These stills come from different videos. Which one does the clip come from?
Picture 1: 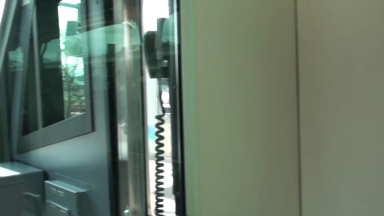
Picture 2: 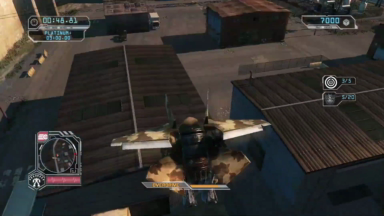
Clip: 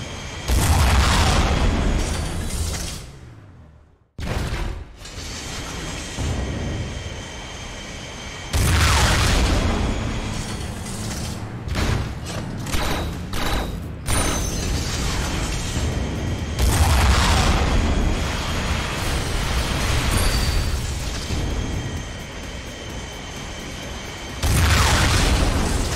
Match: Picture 2